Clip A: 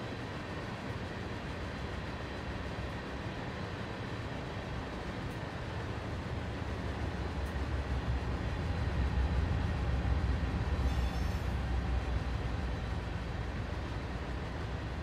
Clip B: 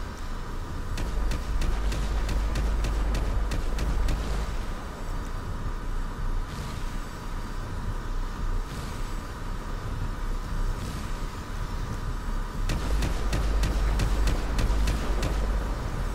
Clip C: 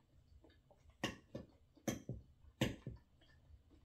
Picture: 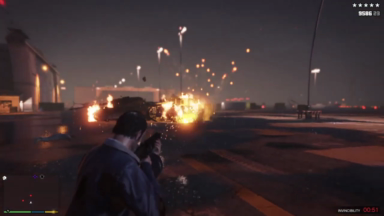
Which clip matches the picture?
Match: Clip B